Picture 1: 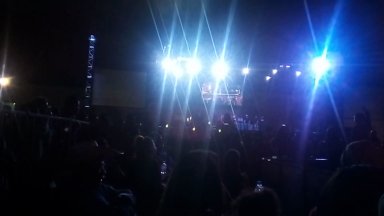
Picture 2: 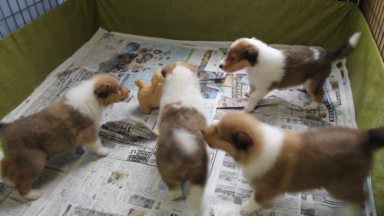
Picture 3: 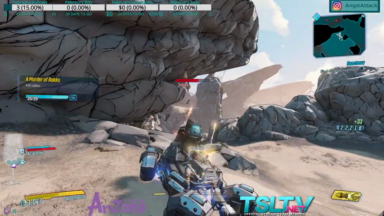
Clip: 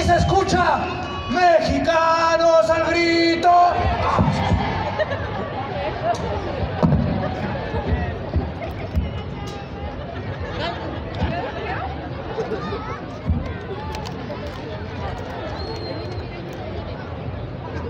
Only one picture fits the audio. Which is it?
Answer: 1